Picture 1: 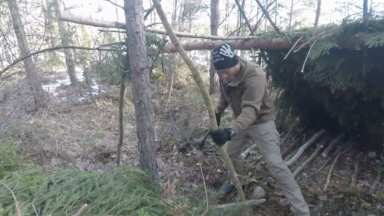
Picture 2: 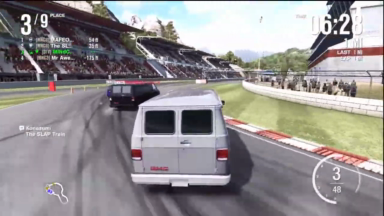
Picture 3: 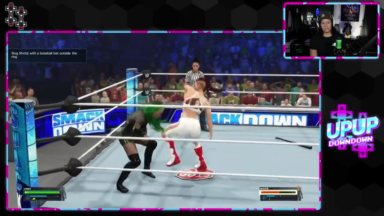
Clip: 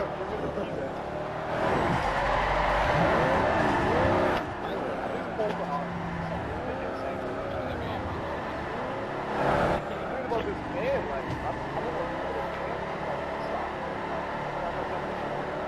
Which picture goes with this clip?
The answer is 2